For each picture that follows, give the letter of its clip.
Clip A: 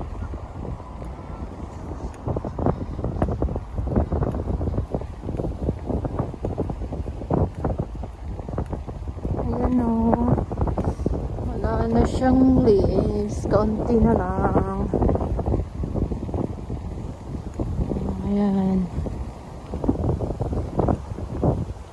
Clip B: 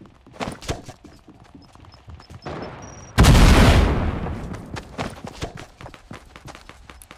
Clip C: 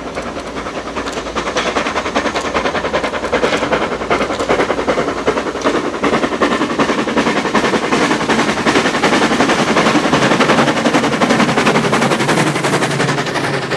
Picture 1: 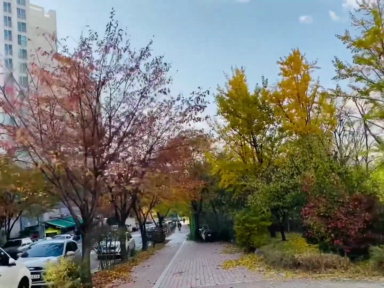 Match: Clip A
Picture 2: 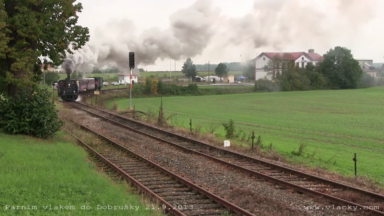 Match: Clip C